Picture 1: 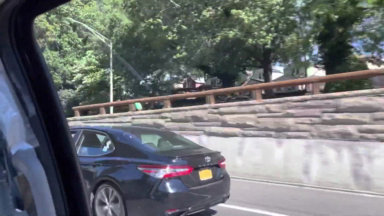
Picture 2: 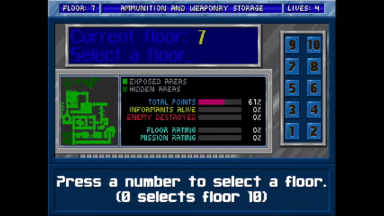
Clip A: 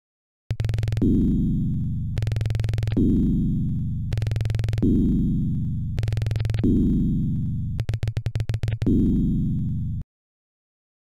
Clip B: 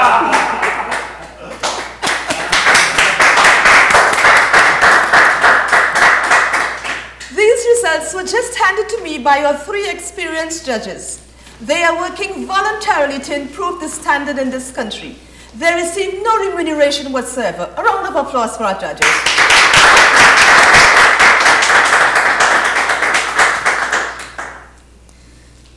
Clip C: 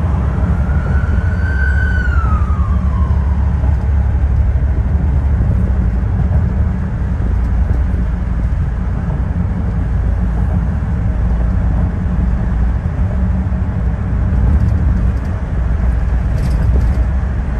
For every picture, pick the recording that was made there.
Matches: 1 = C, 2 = A